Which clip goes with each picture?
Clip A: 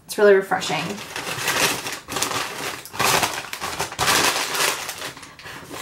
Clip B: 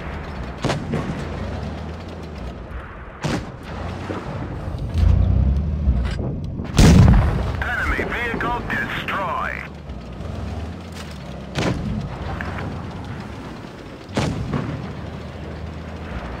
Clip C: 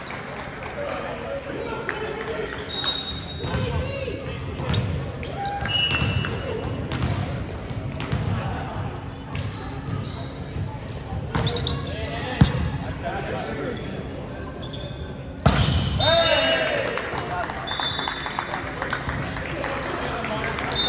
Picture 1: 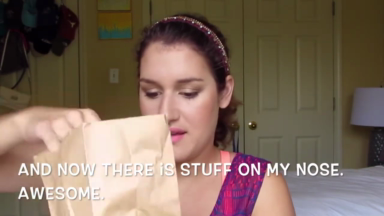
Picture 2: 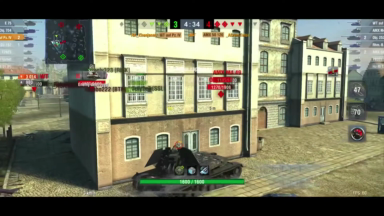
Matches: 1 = A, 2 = B